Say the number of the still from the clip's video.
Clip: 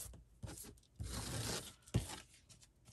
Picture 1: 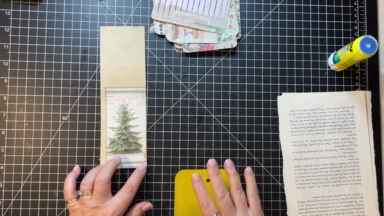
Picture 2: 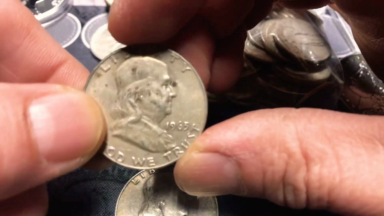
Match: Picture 1